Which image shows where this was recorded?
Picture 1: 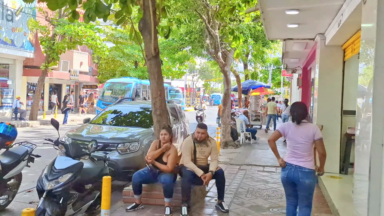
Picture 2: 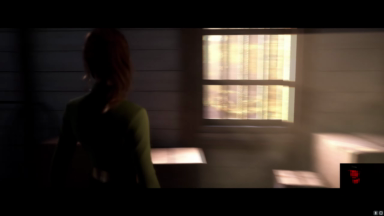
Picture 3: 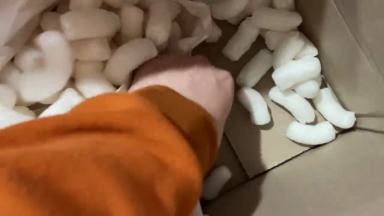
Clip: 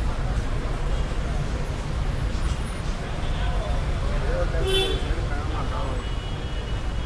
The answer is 1